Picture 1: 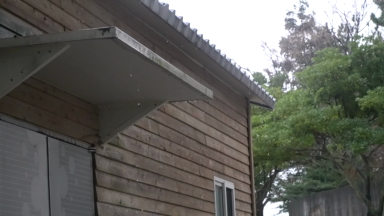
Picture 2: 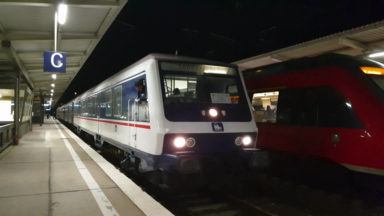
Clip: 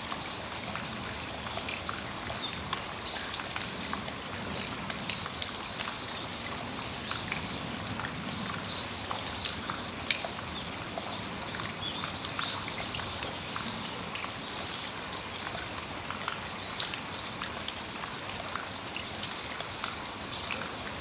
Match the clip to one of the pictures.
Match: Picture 1